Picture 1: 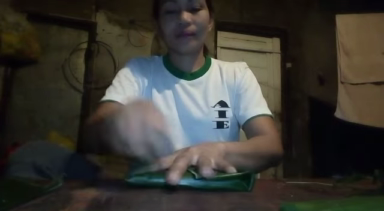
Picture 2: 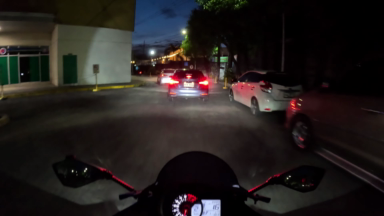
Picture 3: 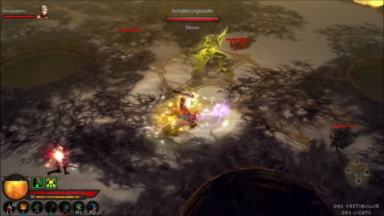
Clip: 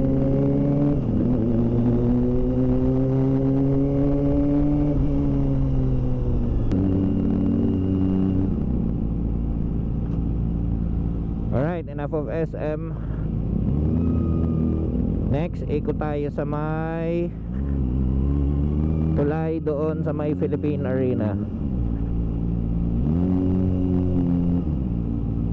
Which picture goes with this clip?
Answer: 2